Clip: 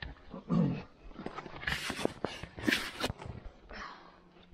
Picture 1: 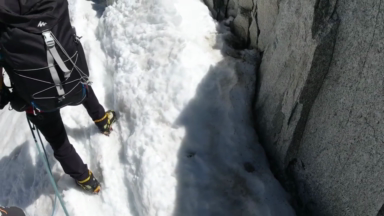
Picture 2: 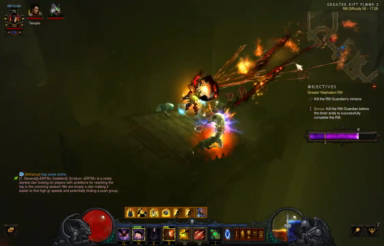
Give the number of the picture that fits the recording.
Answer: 1